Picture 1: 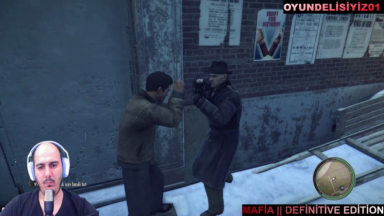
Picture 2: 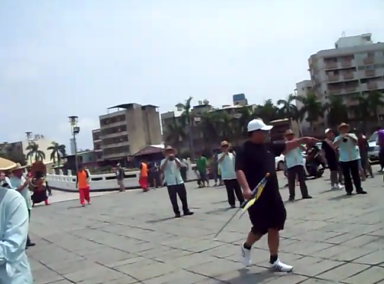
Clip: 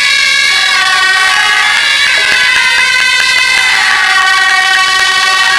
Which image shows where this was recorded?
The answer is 2